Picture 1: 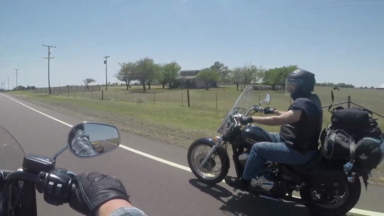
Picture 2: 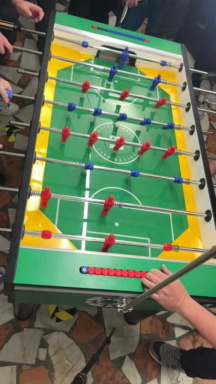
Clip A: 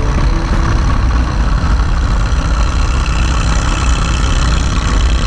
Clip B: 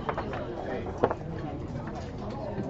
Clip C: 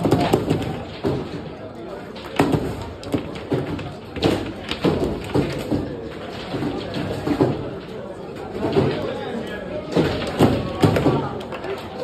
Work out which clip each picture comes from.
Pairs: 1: A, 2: C